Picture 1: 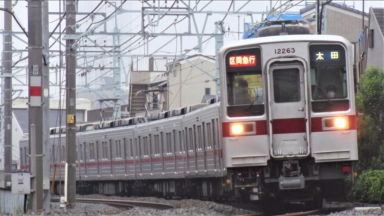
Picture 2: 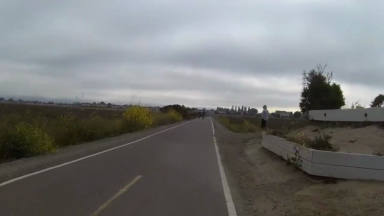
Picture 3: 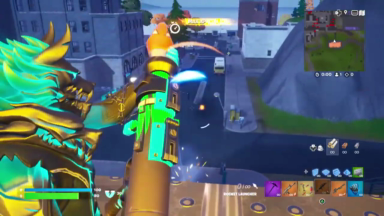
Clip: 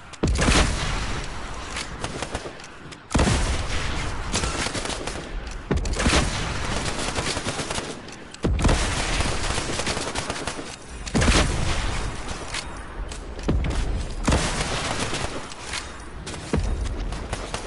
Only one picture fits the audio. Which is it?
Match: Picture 3